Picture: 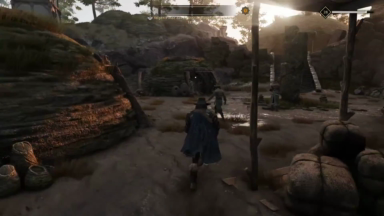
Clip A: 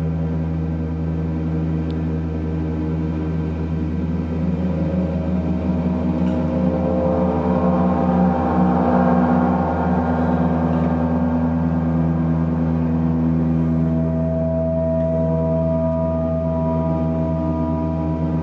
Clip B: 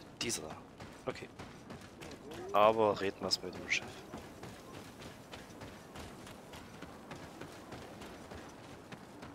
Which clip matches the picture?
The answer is B